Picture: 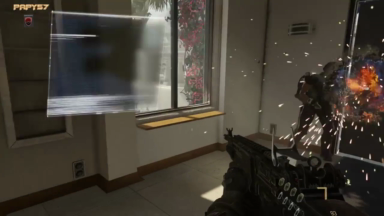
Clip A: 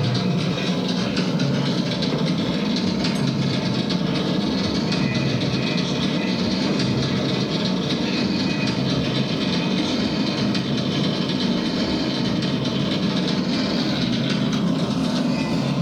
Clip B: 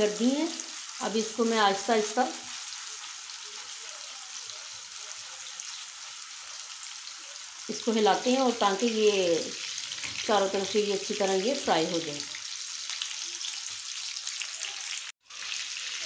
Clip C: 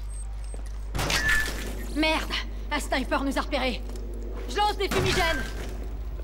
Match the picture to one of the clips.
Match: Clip C